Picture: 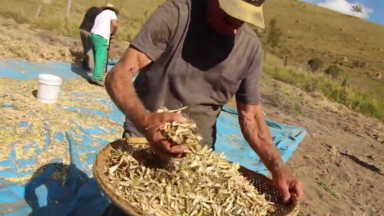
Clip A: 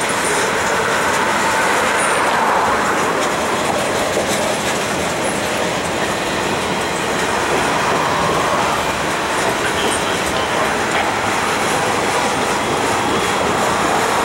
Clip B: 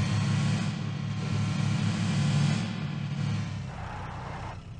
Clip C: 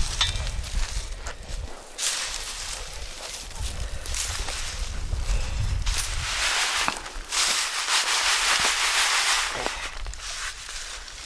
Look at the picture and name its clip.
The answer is C